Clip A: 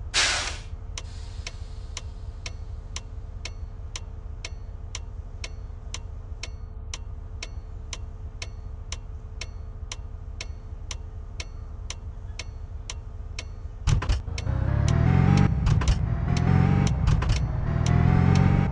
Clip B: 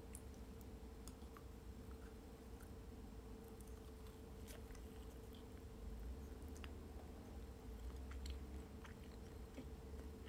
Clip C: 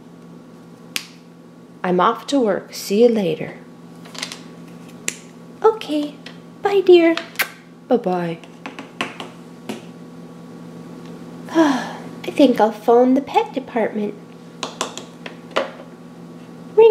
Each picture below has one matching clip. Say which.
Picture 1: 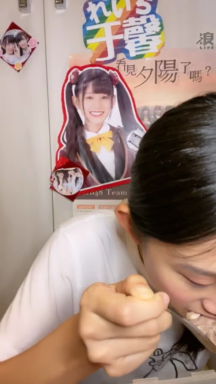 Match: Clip B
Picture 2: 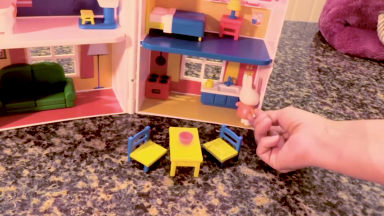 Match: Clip C